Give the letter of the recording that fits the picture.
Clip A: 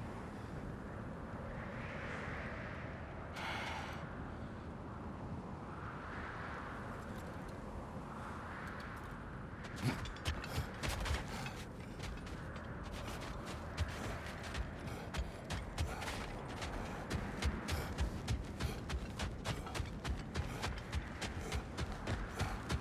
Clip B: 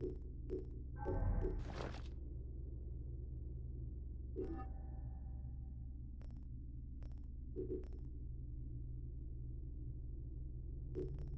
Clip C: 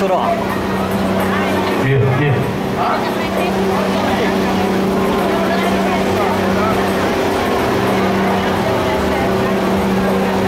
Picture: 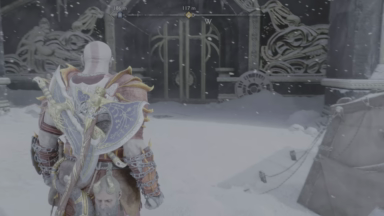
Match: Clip A